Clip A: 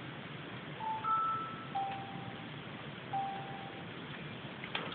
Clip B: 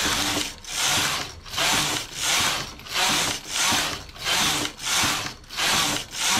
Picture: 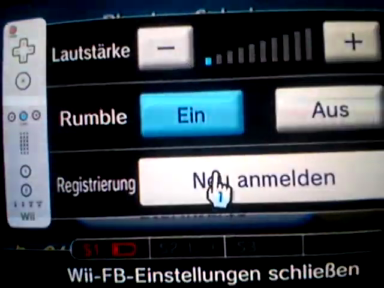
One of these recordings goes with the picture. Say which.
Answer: A